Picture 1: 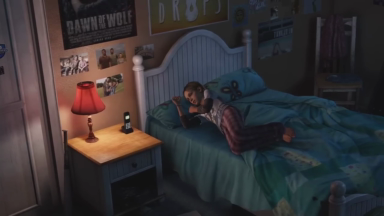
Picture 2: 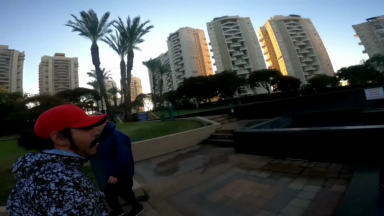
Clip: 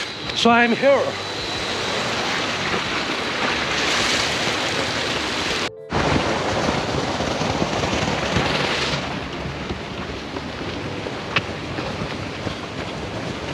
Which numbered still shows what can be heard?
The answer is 2